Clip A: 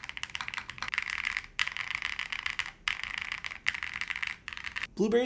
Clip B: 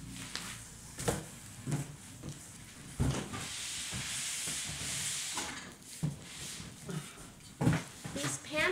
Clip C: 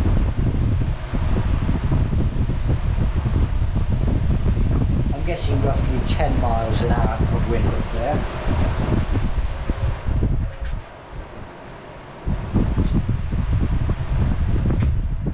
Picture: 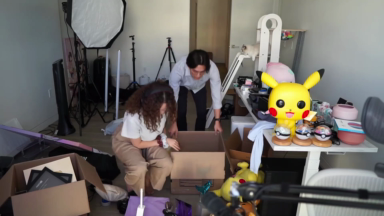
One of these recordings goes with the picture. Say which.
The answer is B